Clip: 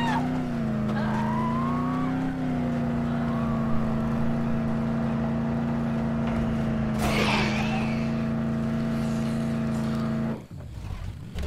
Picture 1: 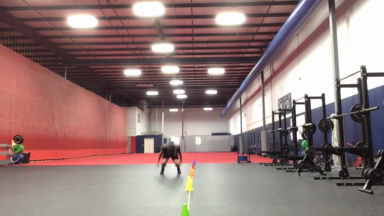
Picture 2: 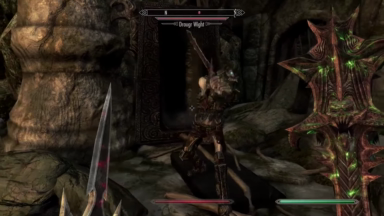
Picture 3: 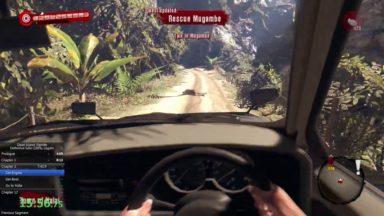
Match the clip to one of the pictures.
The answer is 3